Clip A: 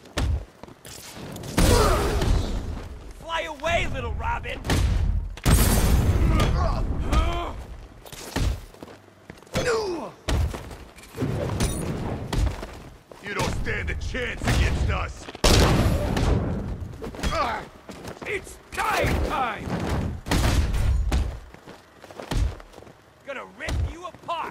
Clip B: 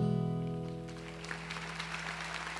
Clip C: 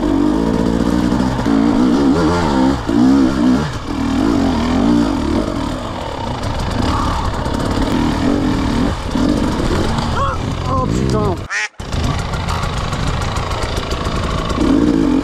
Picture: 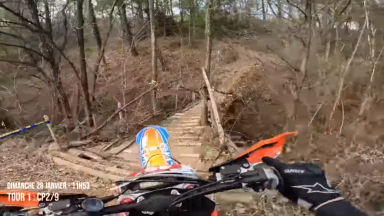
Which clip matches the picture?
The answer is C